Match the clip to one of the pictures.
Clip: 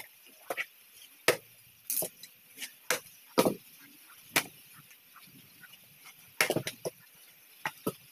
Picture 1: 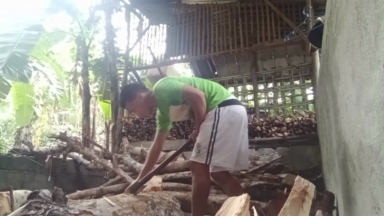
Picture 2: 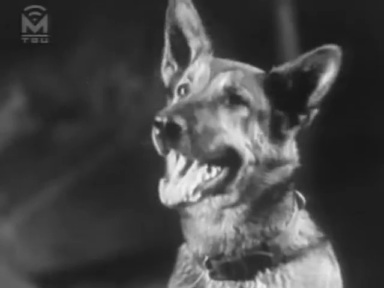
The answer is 1